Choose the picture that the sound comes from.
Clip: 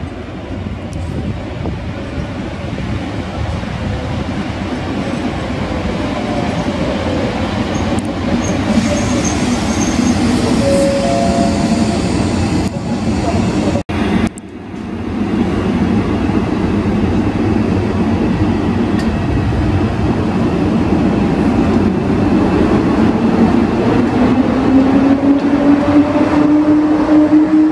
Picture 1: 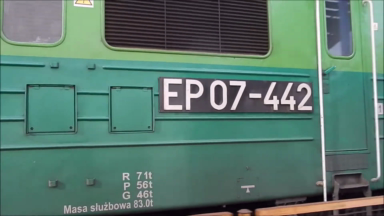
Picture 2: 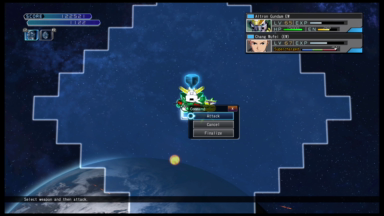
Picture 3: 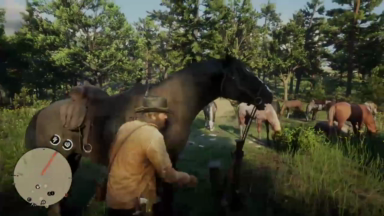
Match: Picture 1